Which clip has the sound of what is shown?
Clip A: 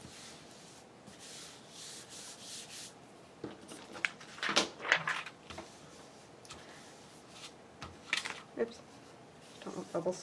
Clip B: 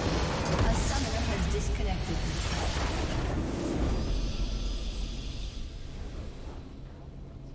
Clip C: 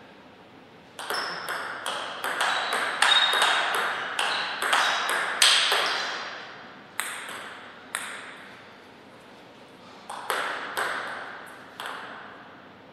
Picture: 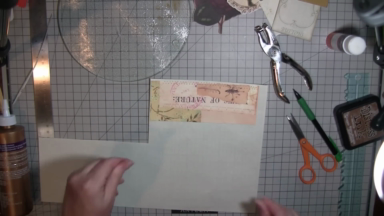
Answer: A